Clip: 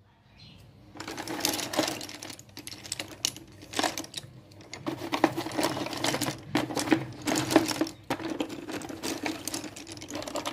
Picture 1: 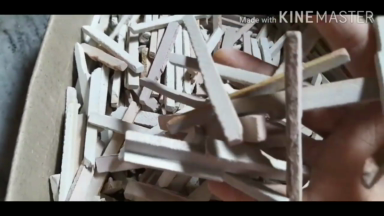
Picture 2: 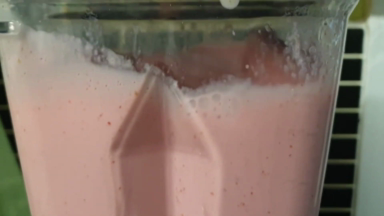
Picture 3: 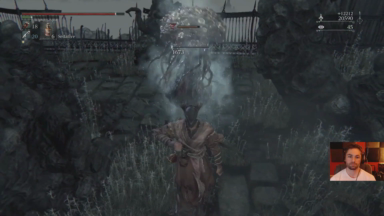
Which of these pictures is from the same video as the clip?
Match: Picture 1